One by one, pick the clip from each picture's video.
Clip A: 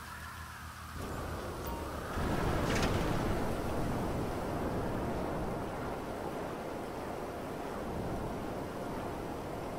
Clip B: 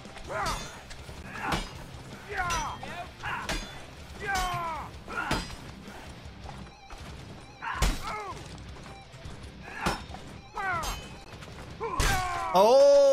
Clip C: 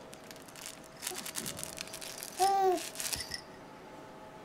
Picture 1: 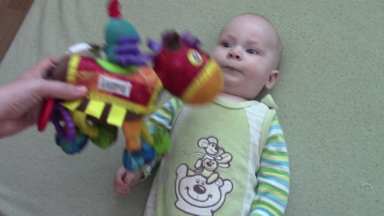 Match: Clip C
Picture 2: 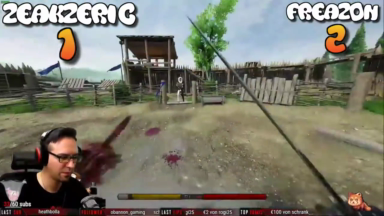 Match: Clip B